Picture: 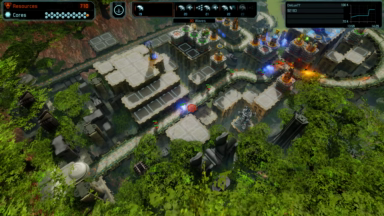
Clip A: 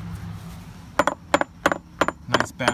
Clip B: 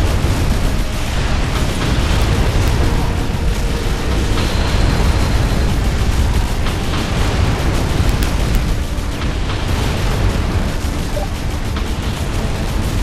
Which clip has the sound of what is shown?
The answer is B